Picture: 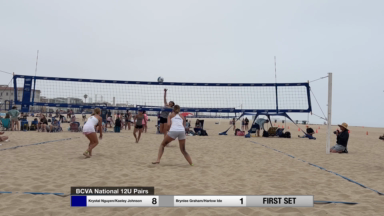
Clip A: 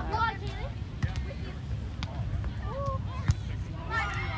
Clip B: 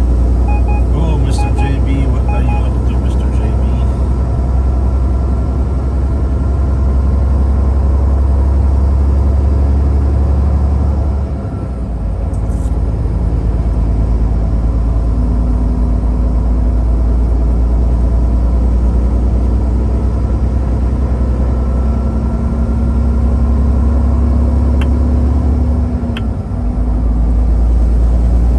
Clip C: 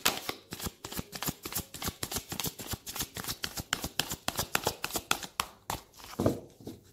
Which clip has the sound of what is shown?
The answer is A